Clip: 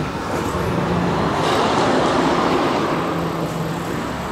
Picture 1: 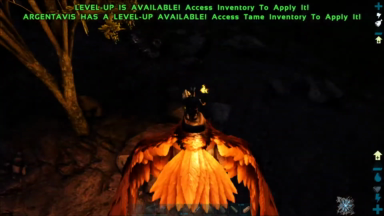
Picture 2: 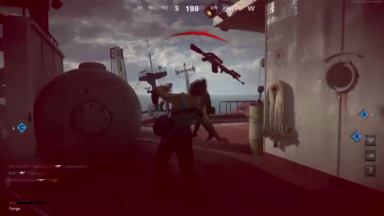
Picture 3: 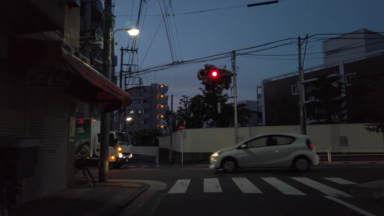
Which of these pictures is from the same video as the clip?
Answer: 3